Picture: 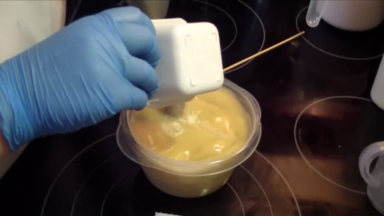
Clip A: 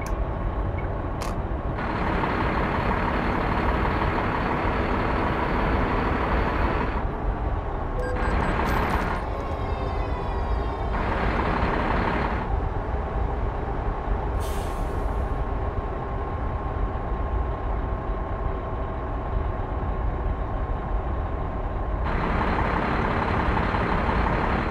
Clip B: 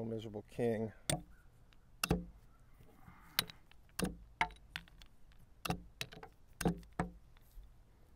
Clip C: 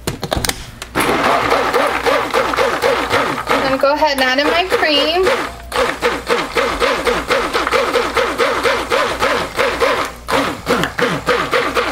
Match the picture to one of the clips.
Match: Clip C